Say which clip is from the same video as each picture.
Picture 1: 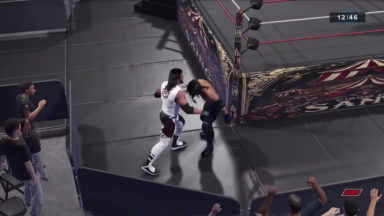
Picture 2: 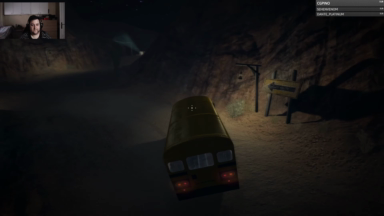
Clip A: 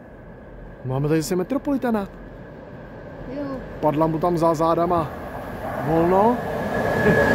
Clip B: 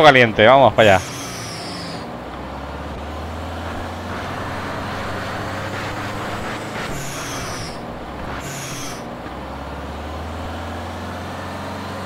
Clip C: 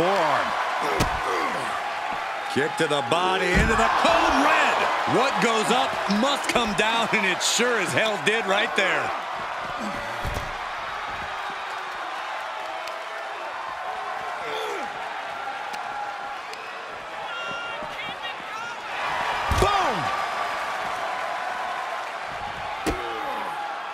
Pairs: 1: C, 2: B